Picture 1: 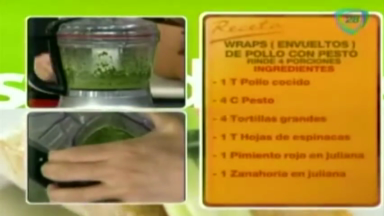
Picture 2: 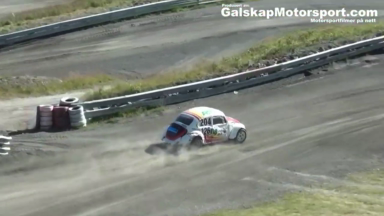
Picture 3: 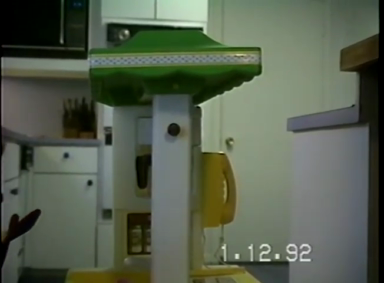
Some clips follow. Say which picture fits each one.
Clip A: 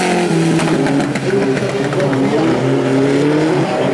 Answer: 2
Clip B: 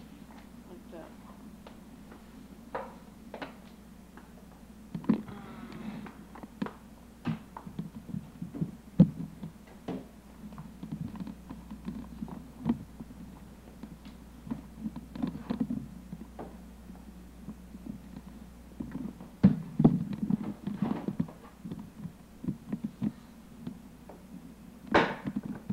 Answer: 3